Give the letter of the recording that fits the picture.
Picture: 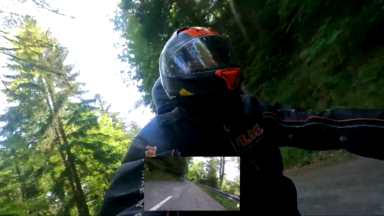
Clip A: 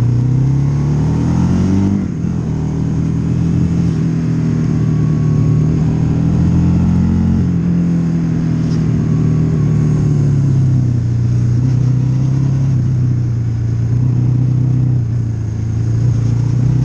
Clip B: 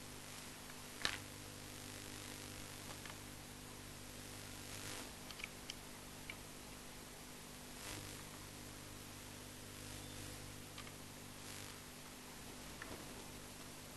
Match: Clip A